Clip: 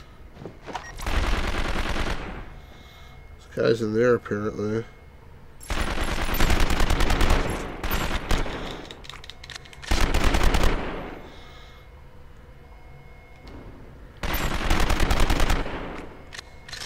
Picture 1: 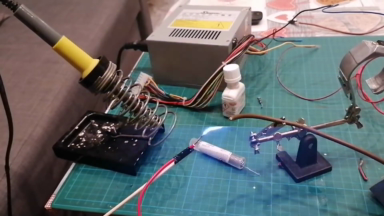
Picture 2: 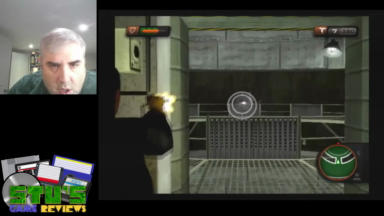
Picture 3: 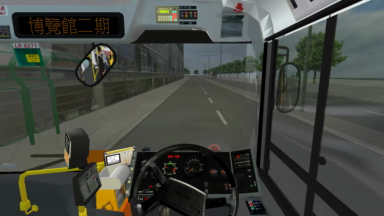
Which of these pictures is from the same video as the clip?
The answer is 2